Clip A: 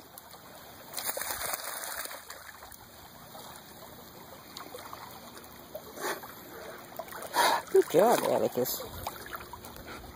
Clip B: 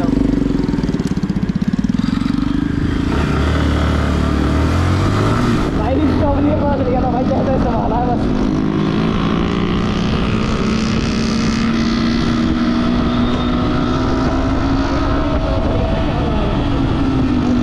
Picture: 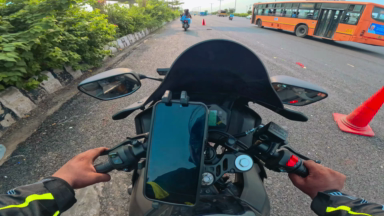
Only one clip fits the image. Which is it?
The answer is B